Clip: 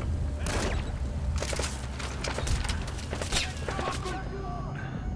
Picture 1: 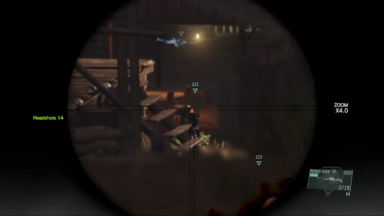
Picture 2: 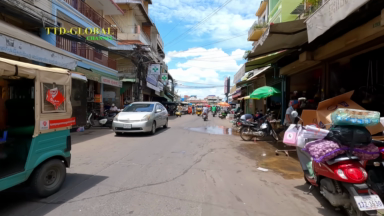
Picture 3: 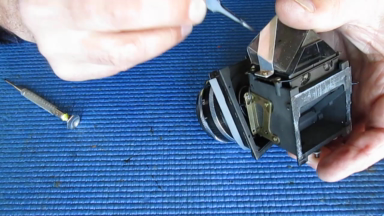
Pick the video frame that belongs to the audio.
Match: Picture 1